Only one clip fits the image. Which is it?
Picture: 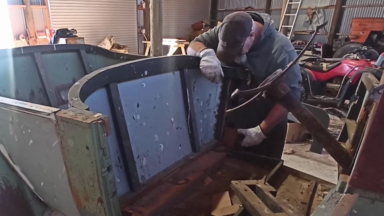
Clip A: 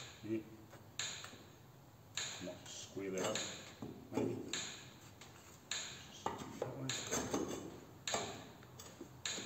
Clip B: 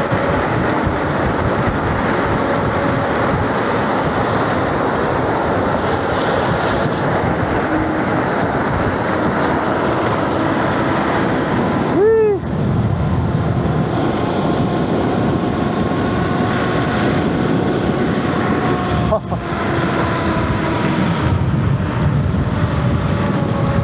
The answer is A